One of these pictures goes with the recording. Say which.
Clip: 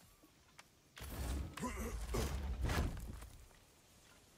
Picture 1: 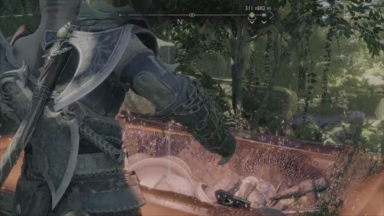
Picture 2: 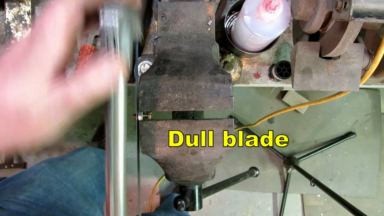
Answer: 1